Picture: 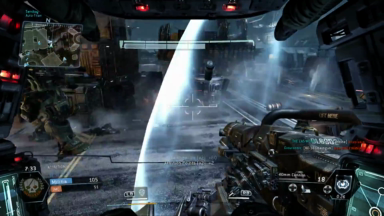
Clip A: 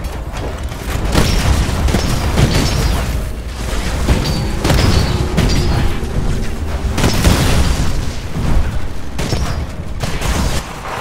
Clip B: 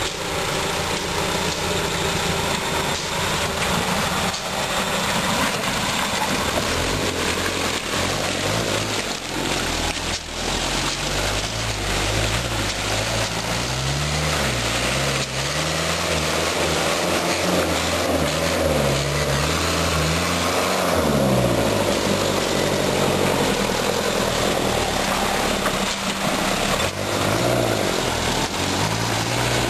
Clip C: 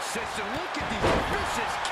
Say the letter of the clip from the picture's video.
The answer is A